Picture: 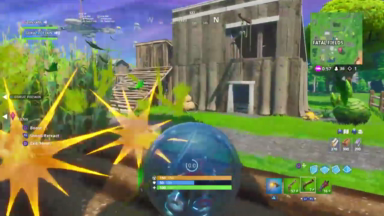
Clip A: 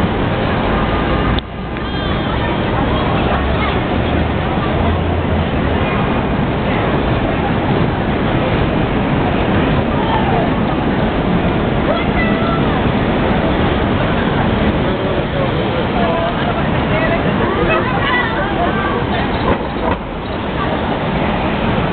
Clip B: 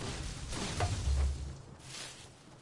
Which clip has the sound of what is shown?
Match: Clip B